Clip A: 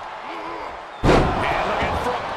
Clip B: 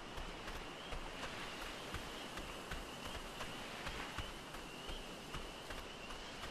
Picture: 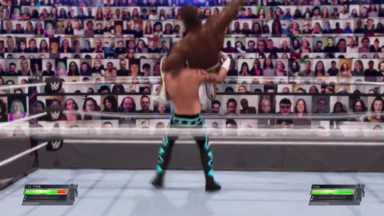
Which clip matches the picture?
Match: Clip A